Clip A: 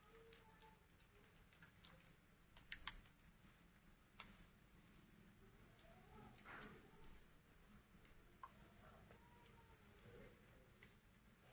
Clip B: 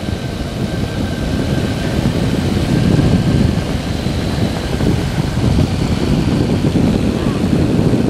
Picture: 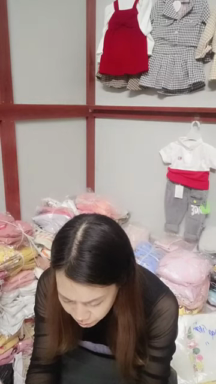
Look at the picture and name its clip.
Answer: A